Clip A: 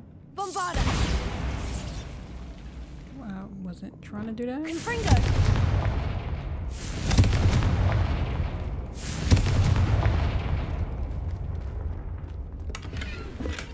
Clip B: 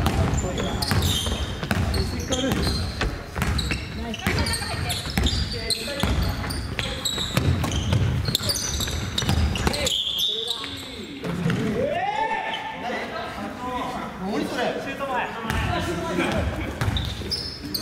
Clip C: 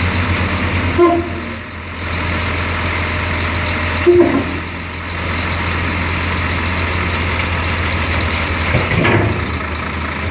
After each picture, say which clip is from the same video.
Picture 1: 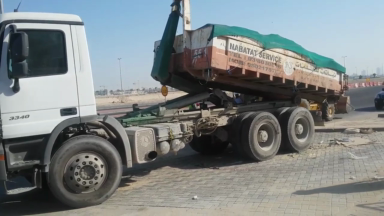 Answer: C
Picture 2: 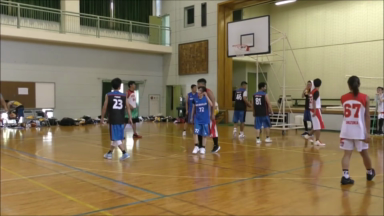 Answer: B